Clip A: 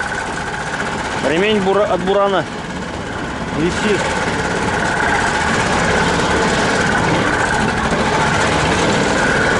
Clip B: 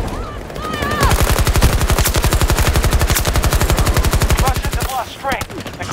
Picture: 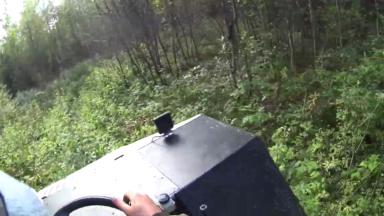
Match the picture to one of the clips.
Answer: A